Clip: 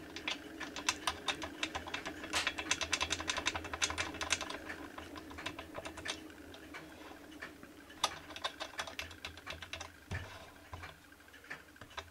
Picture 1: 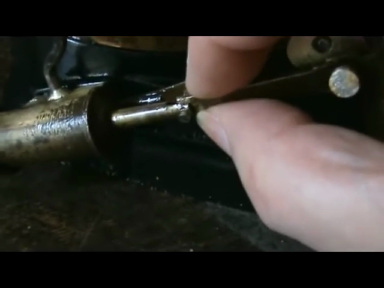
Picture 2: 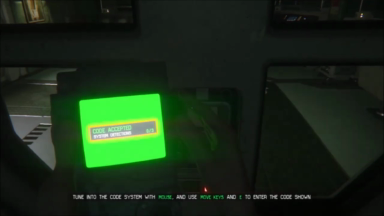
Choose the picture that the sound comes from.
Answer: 1